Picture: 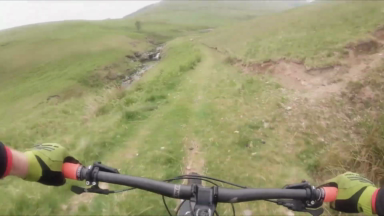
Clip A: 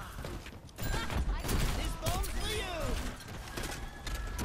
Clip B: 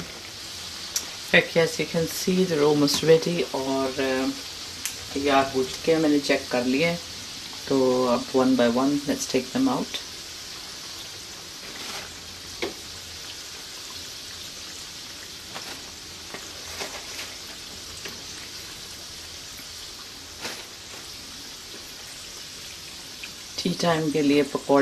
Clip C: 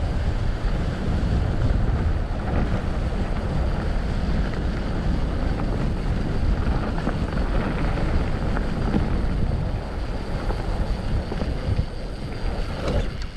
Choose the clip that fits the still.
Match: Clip C